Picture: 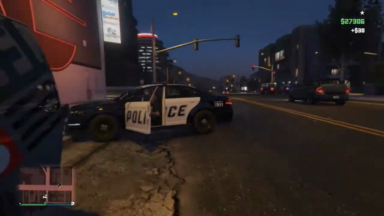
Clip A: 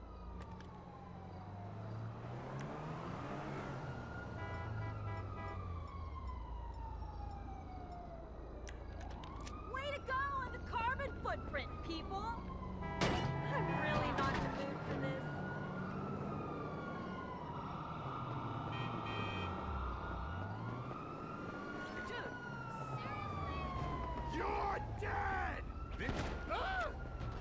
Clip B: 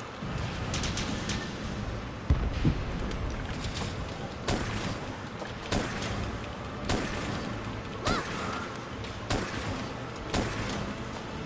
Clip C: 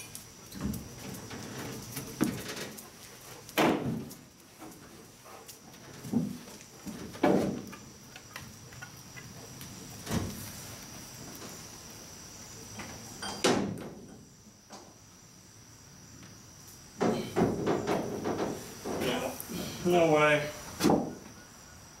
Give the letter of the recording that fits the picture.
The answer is A